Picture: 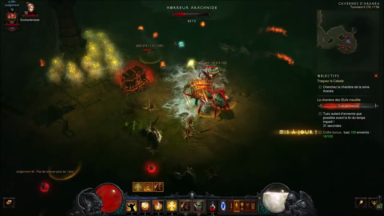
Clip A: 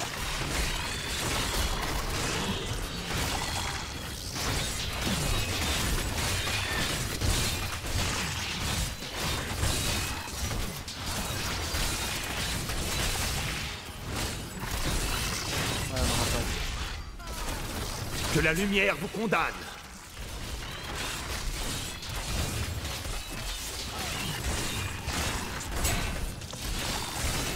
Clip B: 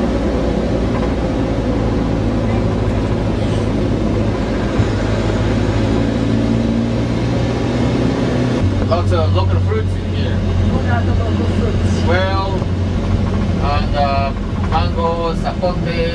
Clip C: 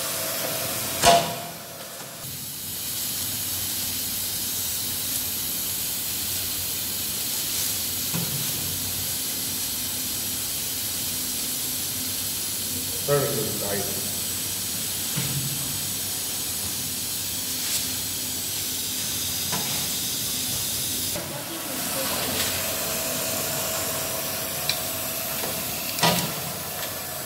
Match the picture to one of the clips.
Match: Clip A